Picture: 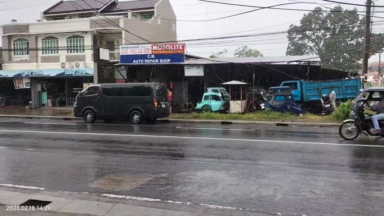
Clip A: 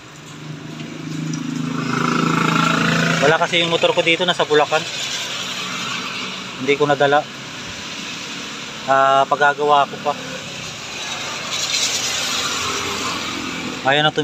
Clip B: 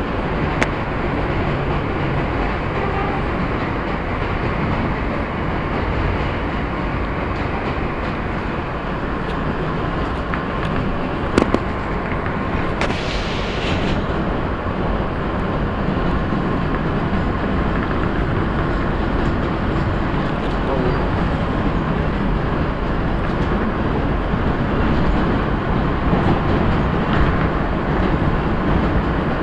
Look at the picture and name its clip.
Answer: A